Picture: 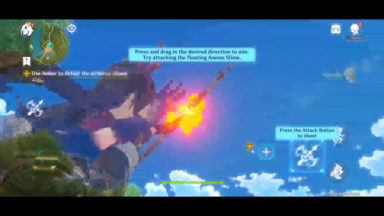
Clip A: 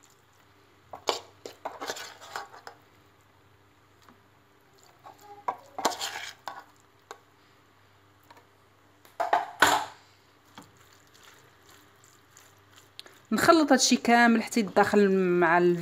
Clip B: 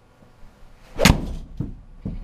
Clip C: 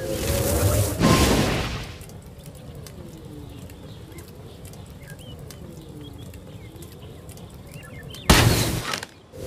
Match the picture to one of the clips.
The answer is C